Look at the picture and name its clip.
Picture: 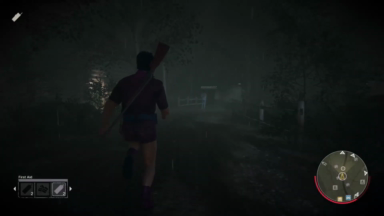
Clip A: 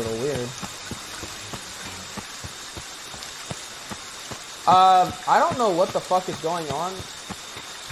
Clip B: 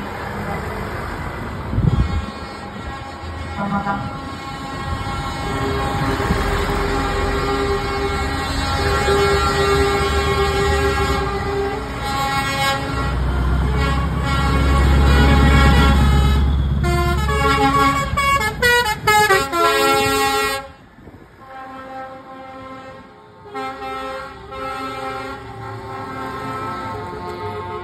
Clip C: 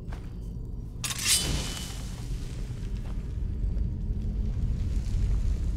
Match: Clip A